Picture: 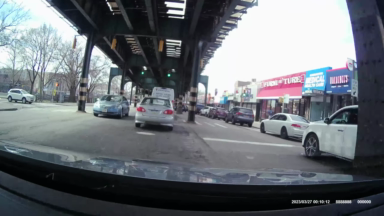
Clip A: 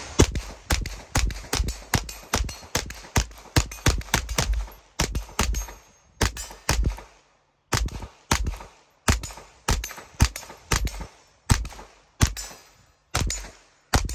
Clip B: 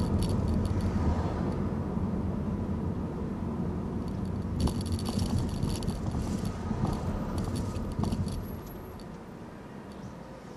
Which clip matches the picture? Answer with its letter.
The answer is B